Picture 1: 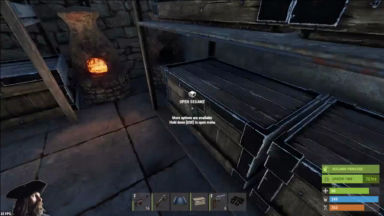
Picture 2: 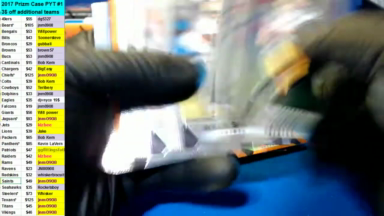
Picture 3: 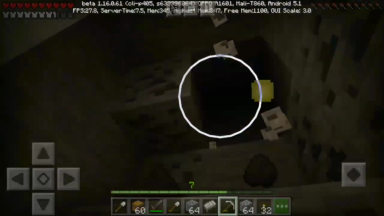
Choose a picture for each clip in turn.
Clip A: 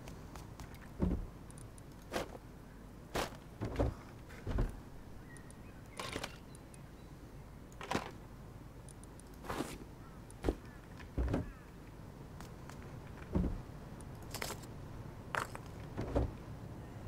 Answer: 1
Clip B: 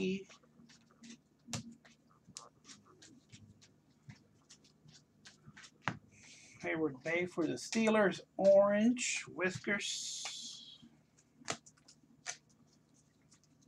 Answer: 2